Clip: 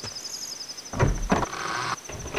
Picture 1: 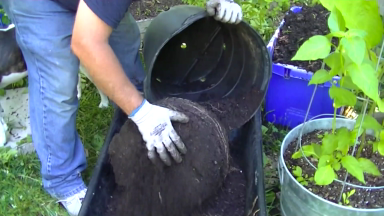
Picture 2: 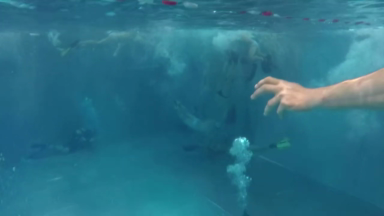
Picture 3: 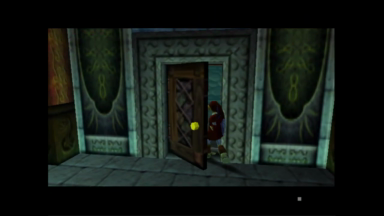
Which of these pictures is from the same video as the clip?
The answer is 3